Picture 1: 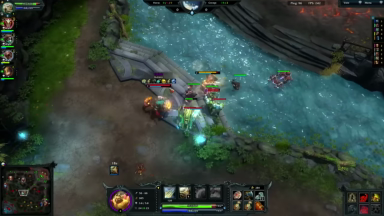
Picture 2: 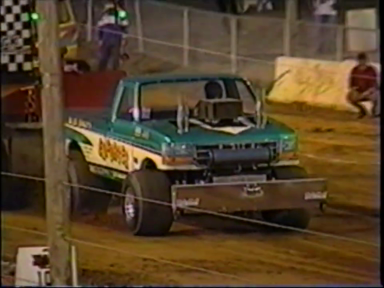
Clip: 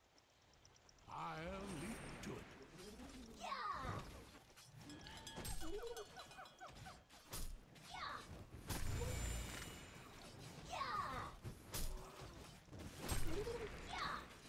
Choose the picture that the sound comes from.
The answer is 1